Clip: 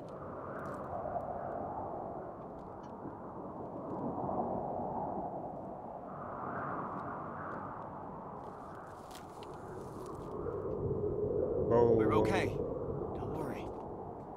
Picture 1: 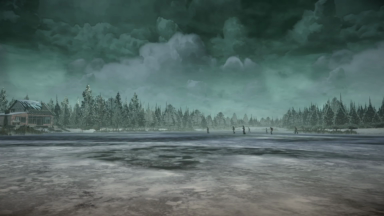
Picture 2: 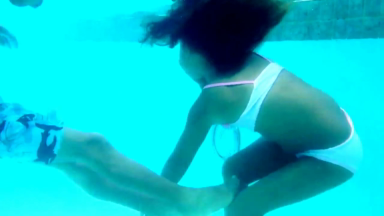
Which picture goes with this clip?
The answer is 1